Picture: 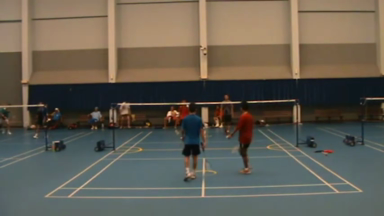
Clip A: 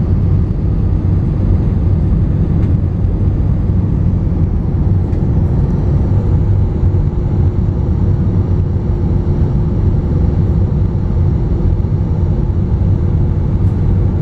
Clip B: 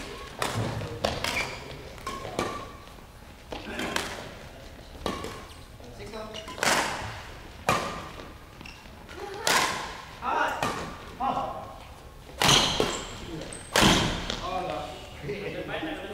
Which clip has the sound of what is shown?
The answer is B